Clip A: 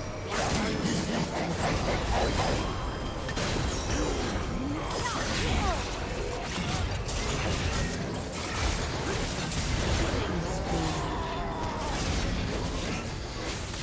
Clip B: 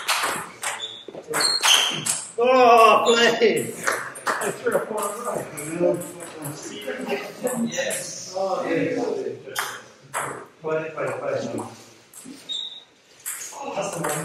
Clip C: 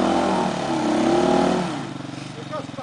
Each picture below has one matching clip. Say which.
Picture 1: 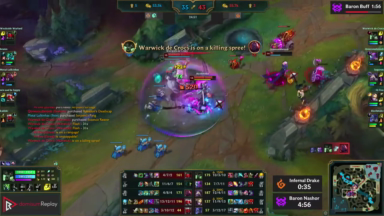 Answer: A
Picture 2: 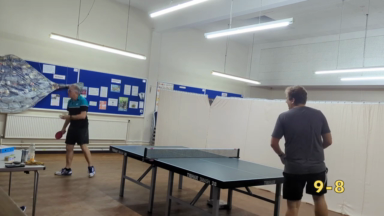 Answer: B